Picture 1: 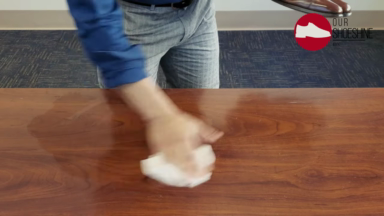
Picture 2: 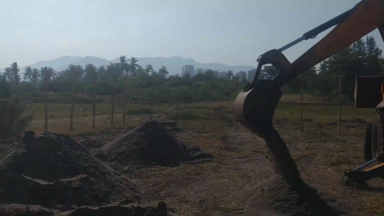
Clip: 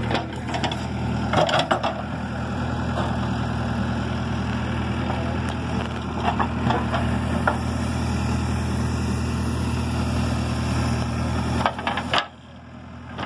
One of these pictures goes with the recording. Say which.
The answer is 2